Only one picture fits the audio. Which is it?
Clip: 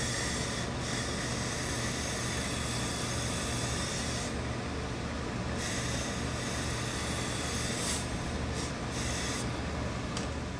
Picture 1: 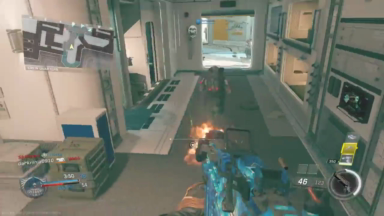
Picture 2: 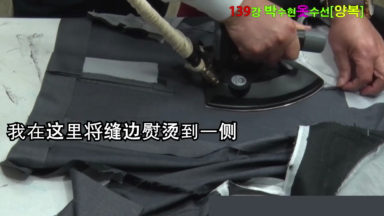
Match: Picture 2